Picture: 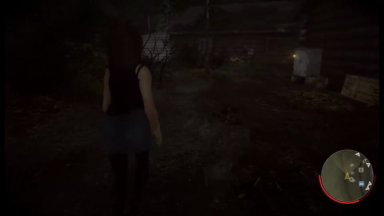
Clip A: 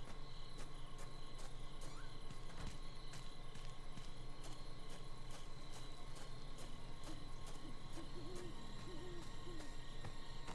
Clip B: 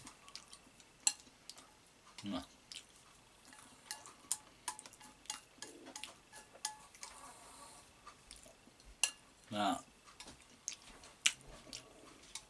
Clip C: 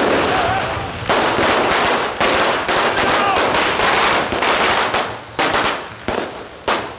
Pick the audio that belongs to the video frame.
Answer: A